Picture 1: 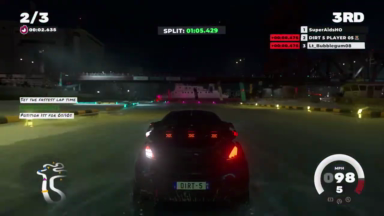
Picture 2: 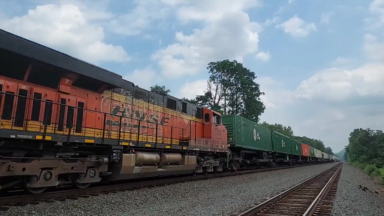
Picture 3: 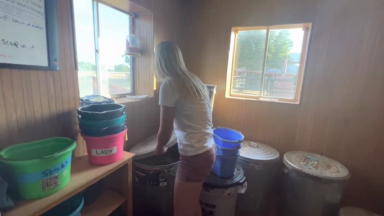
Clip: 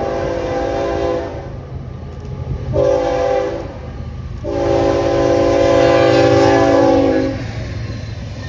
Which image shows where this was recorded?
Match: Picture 2